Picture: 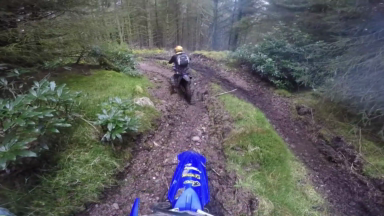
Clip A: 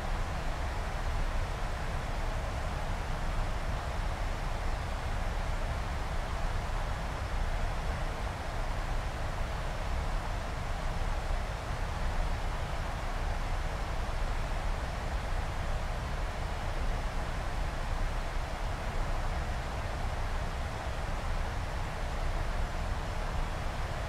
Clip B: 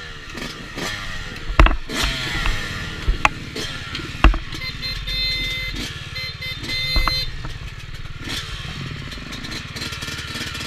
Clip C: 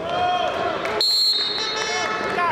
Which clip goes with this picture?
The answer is B